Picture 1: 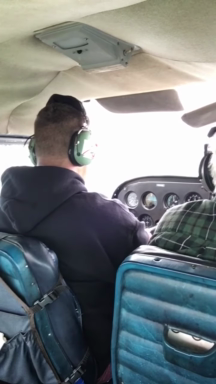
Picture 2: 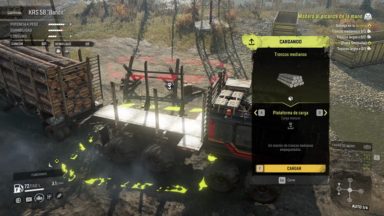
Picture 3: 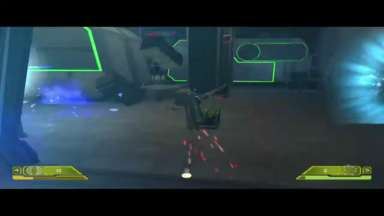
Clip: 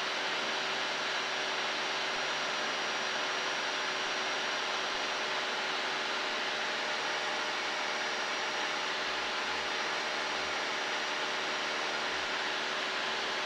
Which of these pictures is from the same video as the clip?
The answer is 1